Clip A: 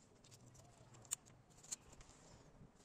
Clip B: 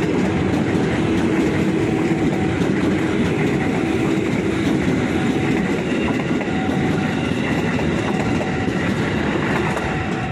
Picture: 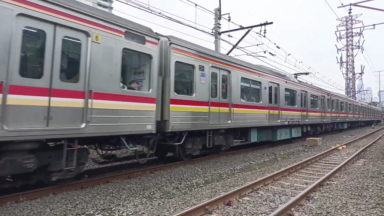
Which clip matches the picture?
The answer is B